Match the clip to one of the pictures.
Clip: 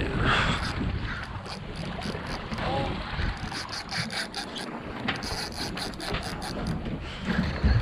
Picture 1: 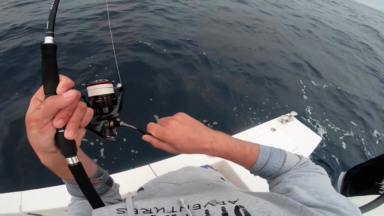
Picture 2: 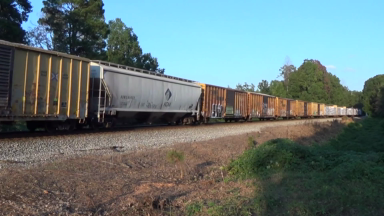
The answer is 1